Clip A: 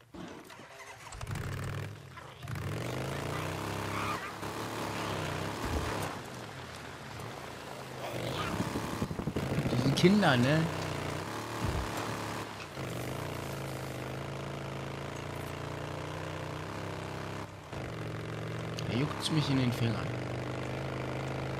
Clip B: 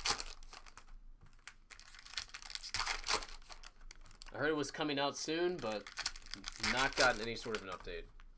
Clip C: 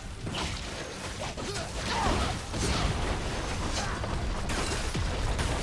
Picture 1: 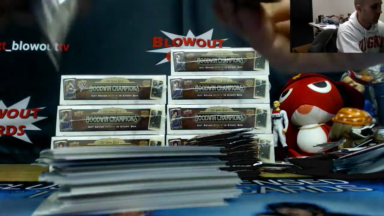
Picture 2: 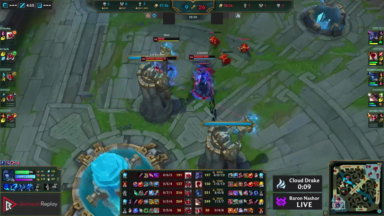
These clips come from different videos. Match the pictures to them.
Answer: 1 B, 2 C